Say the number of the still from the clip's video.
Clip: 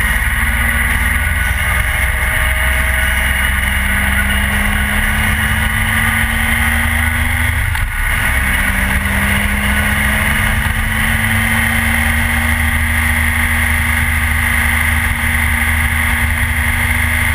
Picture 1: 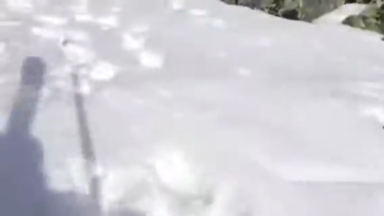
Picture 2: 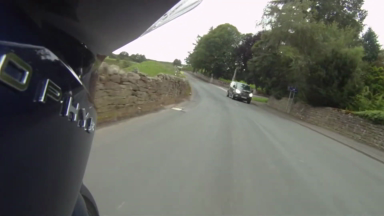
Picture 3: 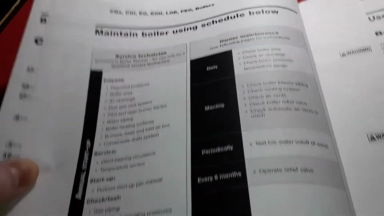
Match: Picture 2